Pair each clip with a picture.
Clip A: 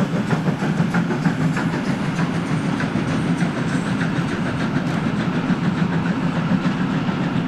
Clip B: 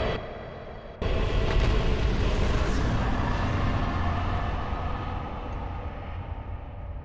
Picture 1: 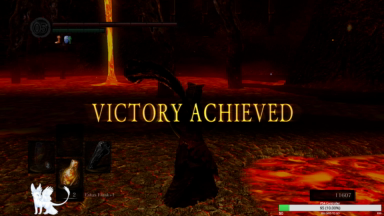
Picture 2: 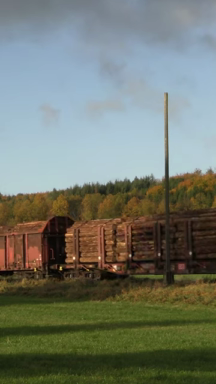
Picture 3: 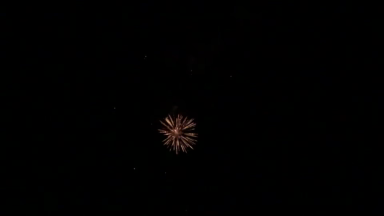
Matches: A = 2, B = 1